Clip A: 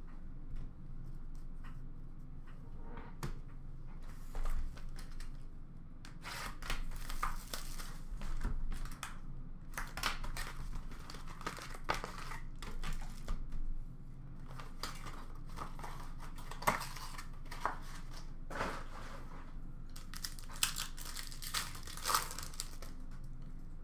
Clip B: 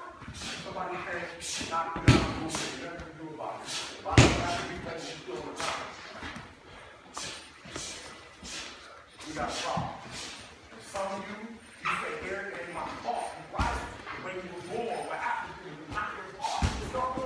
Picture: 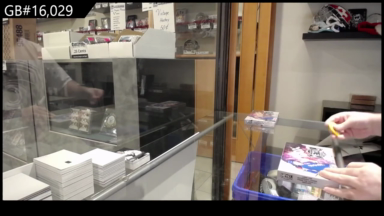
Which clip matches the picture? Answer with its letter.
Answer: A